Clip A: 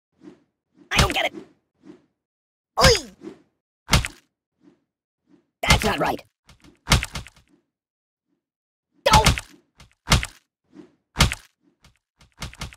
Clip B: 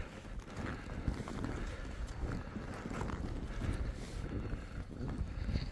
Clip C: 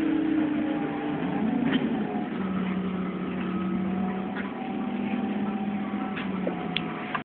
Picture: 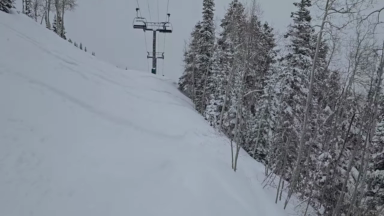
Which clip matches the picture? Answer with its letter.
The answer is B